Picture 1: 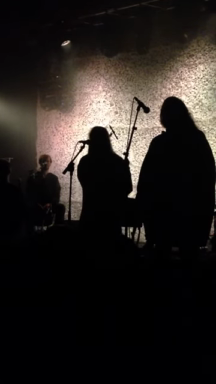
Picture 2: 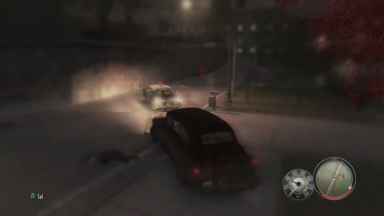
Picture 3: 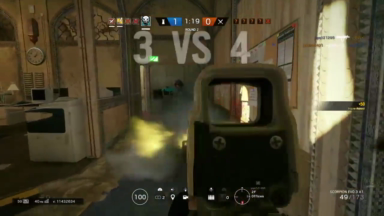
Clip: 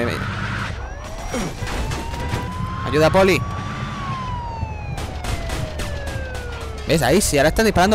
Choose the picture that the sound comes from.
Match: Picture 2